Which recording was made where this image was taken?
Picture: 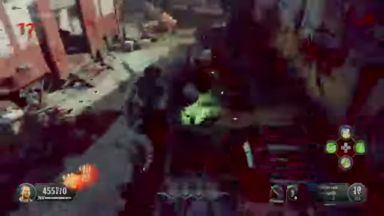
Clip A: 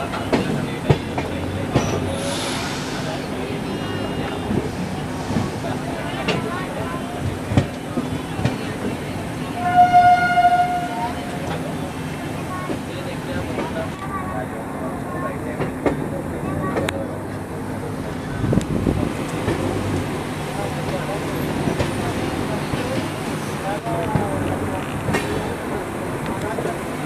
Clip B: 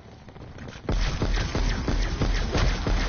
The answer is B